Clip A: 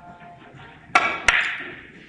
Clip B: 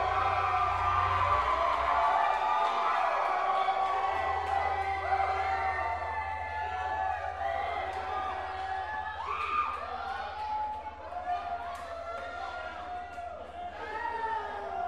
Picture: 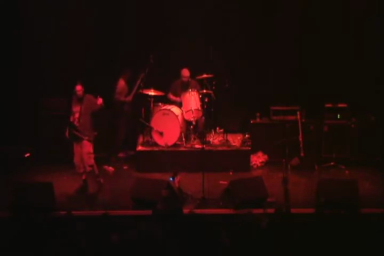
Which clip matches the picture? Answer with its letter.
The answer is B